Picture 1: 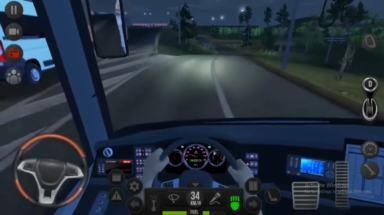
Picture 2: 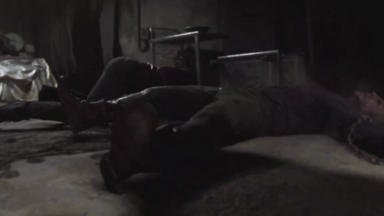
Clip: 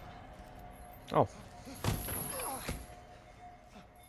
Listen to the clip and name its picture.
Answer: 2